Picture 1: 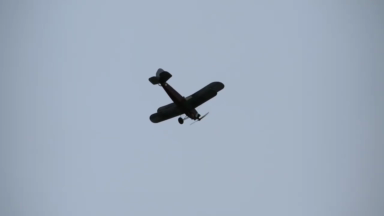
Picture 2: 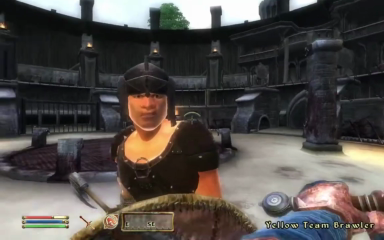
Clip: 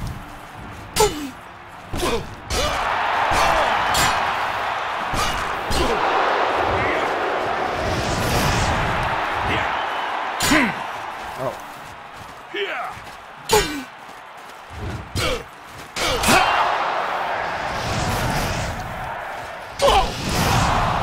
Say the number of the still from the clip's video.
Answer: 2